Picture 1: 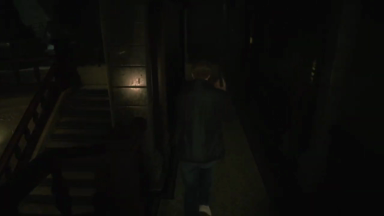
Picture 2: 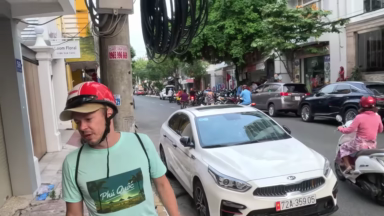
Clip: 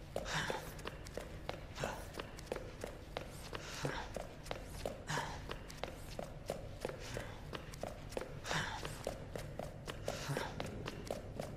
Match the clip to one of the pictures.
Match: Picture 1